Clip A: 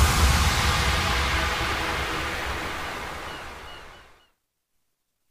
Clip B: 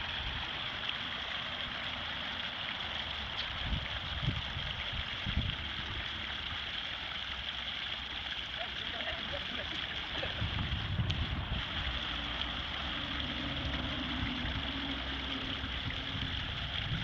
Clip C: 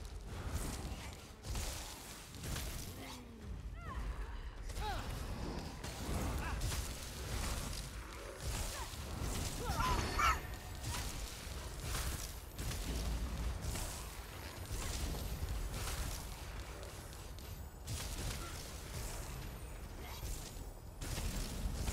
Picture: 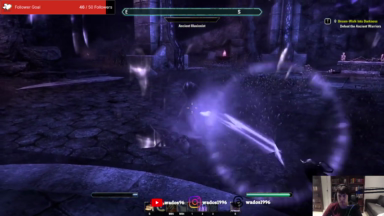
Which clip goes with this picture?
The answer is C